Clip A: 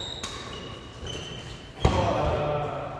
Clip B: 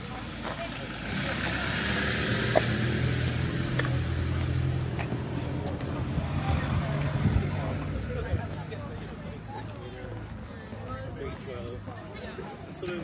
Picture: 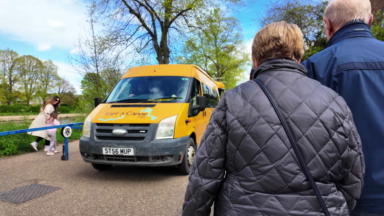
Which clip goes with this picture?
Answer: B